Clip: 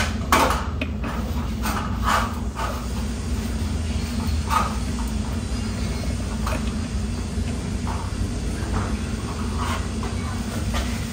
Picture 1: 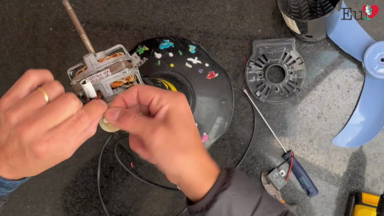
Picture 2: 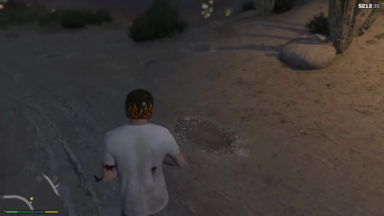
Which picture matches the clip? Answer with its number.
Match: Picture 1